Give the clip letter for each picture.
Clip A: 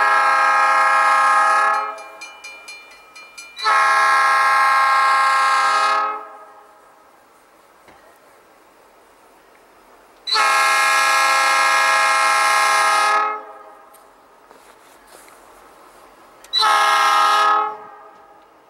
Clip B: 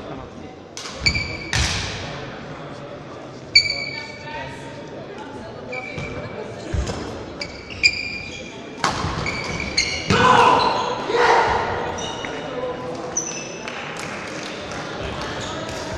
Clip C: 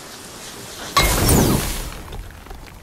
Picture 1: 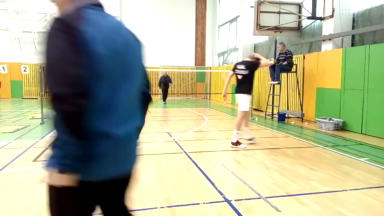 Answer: B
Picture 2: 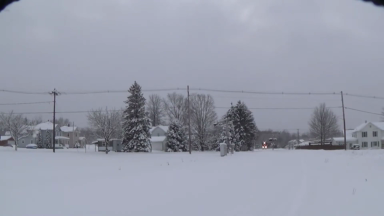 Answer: A